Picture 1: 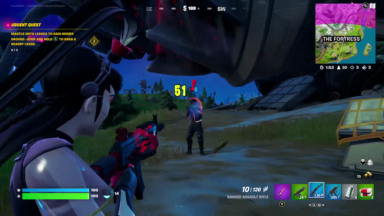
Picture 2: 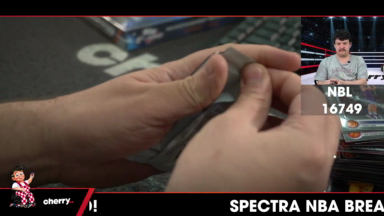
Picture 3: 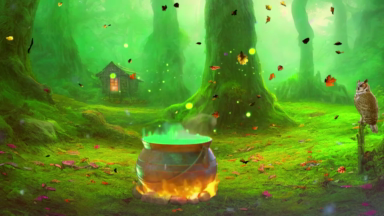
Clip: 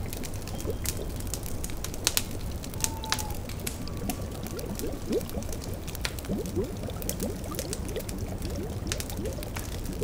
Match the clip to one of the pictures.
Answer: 3